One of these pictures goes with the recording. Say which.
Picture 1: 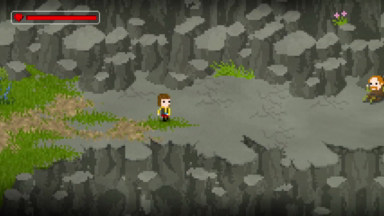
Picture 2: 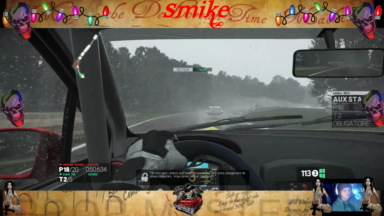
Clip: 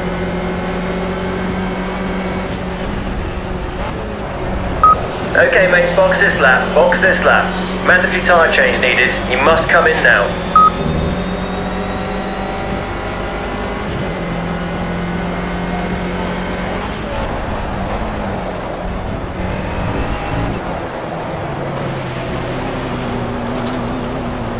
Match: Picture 2